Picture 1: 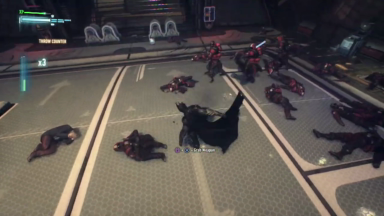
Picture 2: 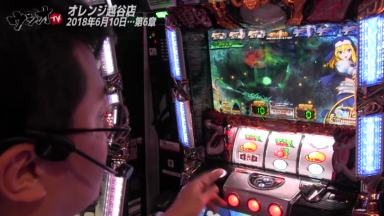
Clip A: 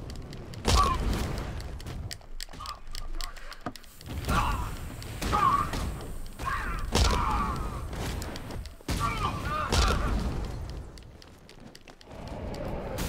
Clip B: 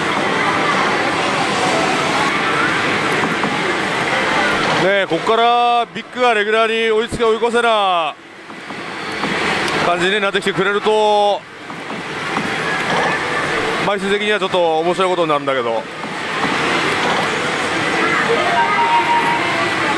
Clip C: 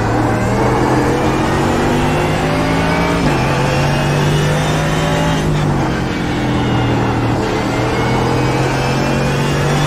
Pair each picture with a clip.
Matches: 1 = A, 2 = B